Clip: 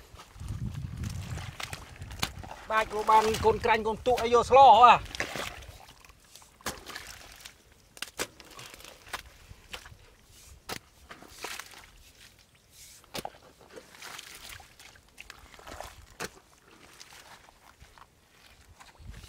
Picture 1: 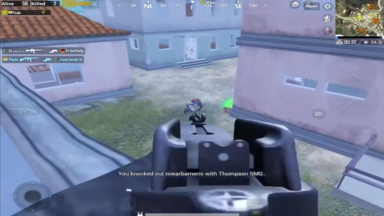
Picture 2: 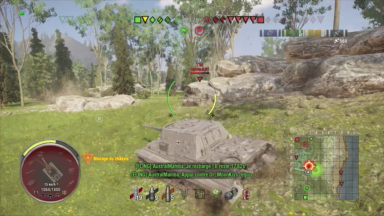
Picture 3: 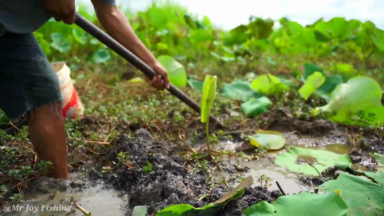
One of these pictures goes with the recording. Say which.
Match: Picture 3